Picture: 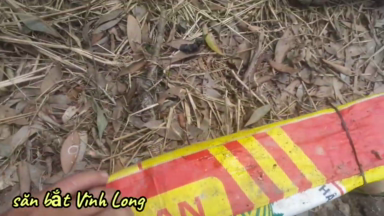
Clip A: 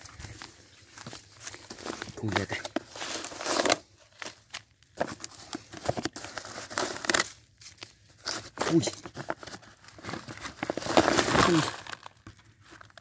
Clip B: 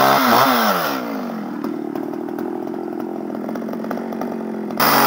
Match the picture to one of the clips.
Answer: A